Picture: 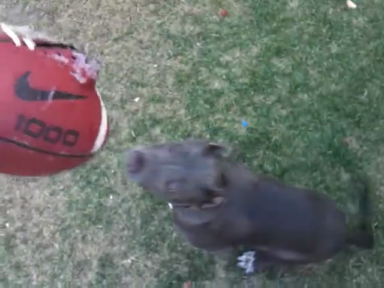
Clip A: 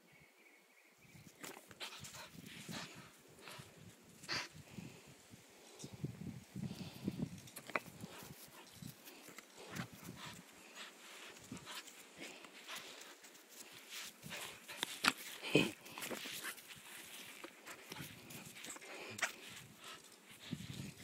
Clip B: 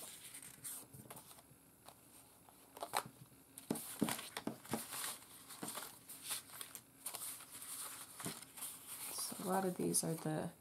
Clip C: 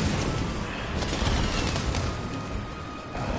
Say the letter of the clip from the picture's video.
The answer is A